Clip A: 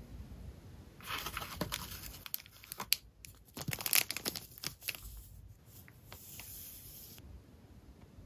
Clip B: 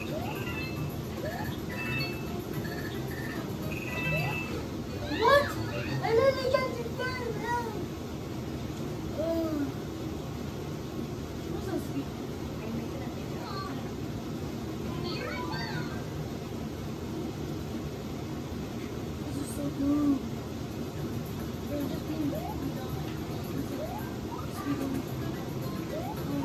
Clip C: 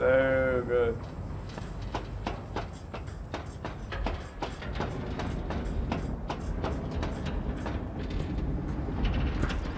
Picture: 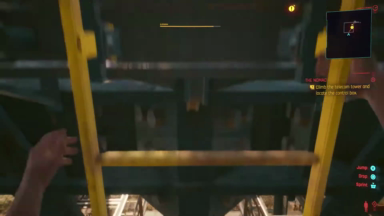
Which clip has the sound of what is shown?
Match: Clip C